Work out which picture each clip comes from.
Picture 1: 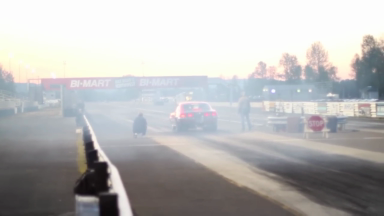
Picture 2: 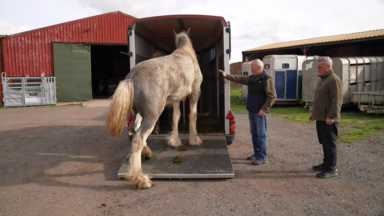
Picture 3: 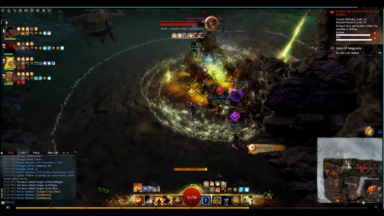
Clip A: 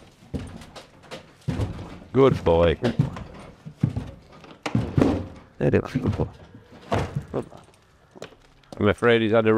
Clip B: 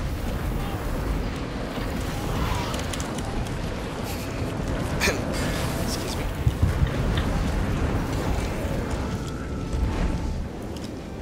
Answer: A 2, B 3